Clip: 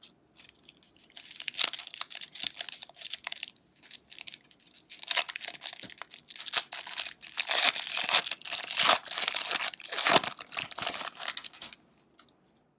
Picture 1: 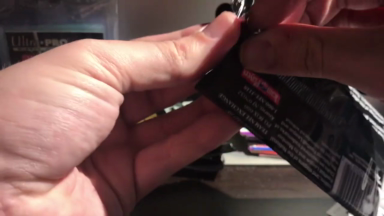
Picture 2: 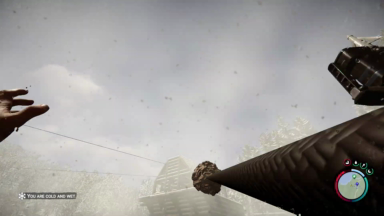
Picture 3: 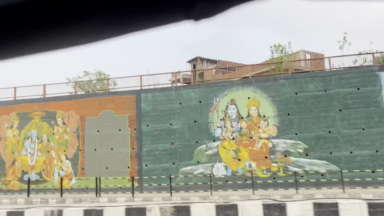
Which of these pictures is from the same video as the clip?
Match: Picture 1